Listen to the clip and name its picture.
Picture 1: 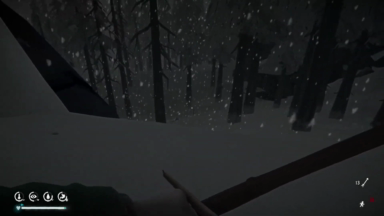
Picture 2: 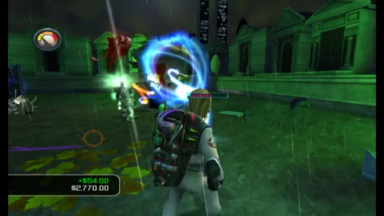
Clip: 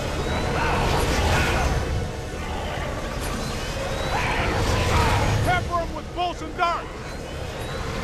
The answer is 2